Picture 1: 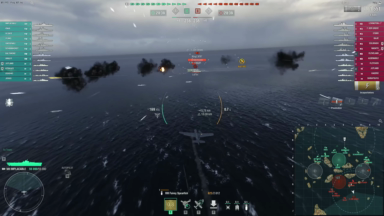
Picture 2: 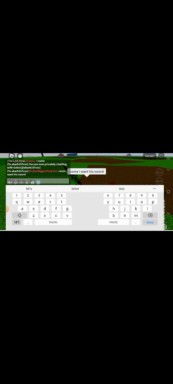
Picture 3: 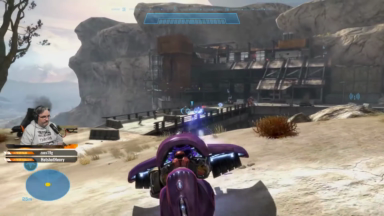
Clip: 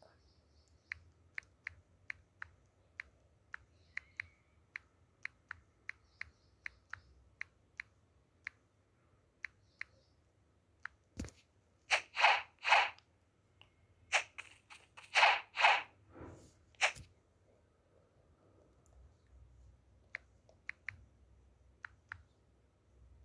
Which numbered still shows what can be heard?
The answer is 2